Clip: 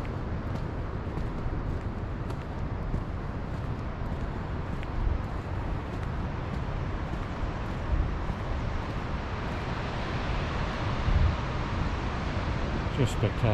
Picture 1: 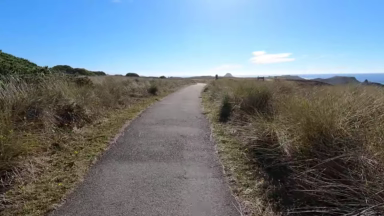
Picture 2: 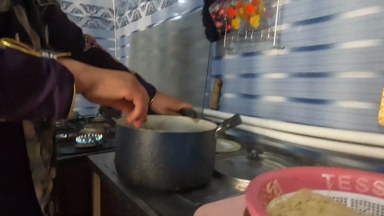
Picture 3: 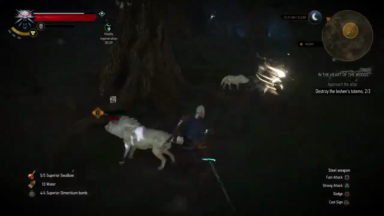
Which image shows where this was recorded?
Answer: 1